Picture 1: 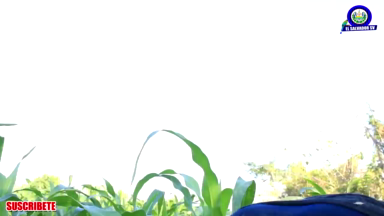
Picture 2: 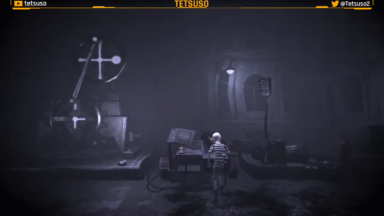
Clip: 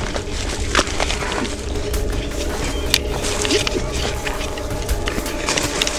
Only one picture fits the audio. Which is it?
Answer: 1